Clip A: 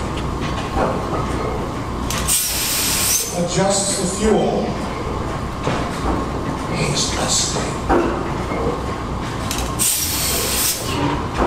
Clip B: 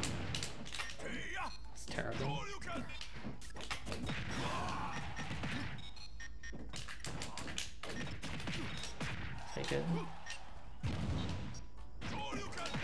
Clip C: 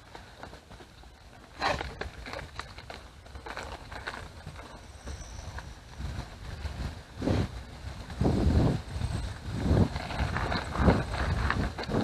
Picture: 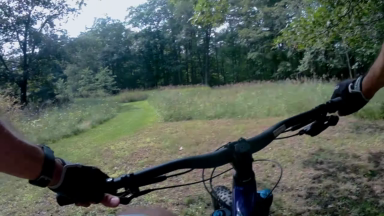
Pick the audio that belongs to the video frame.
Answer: C